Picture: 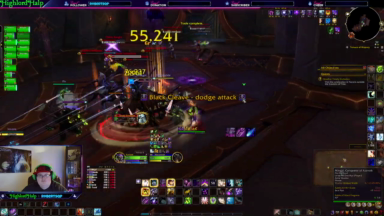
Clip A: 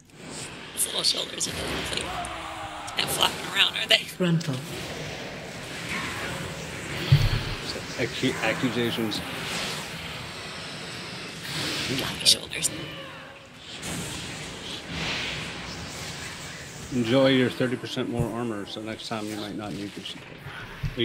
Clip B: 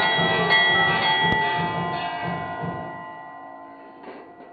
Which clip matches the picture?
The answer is A